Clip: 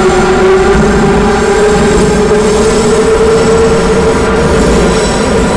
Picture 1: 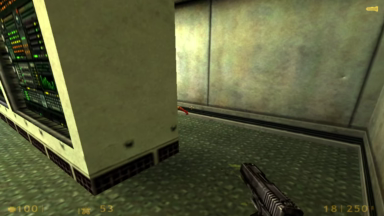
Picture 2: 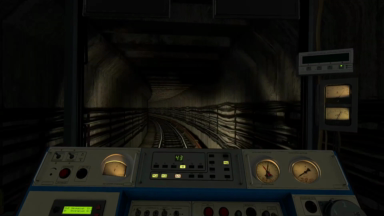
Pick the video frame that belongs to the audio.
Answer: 2